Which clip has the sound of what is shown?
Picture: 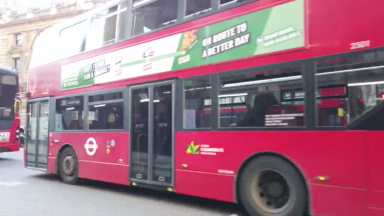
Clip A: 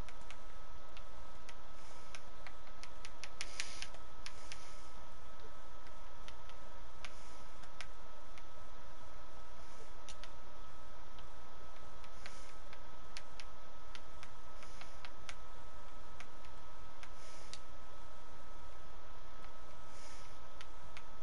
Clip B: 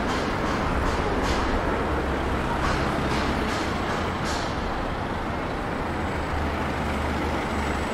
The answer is B